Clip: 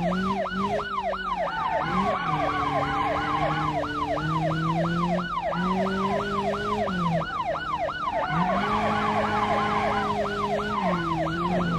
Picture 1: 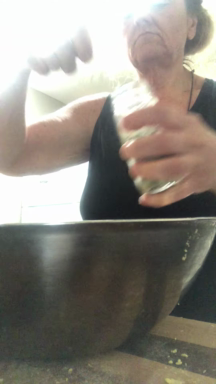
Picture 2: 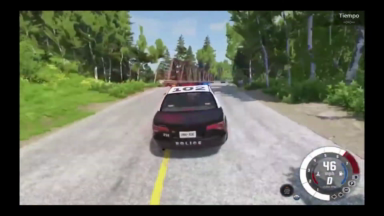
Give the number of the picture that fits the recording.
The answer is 2